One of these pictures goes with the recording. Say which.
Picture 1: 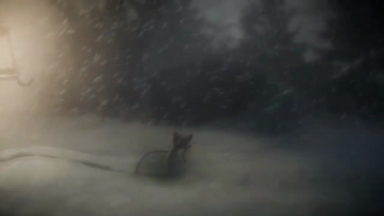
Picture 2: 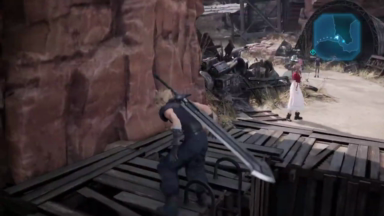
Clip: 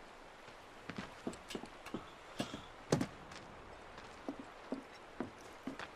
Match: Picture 2